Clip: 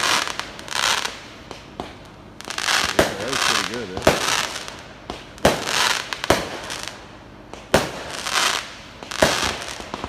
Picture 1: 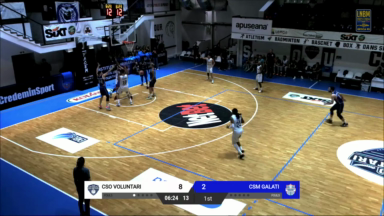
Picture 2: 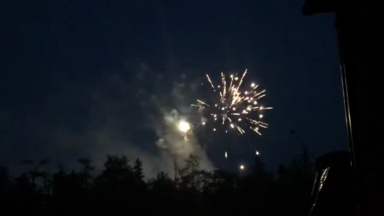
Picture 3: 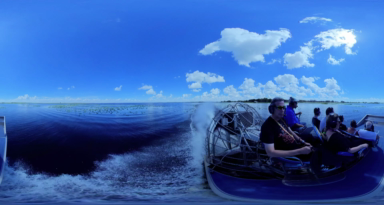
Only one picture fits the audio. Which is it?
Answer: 2